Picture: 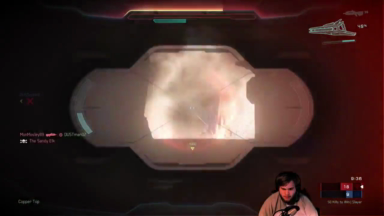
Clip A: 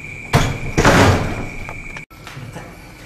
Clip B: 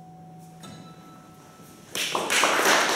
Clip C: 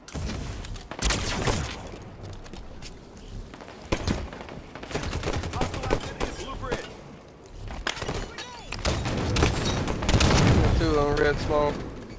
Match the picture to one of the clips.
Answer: C